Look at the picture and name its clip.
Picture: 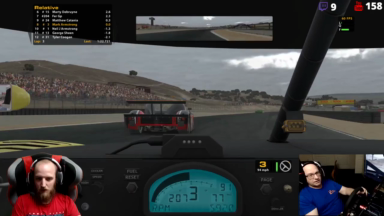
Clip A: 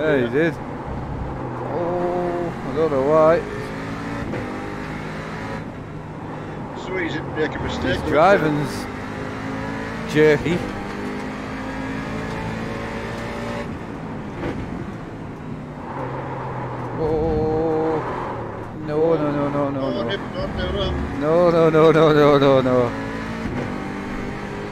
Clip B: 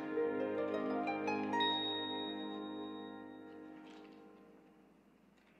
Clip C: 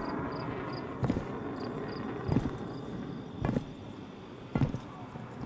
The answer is A